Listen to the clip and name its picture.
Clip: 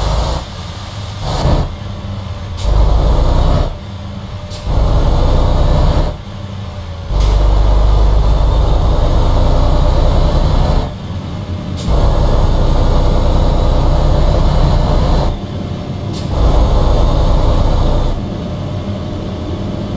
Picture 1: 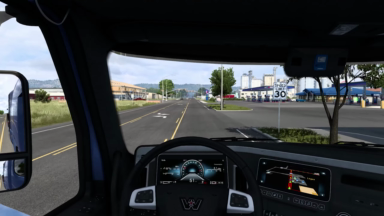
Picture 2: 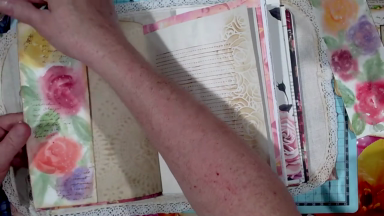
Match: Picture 1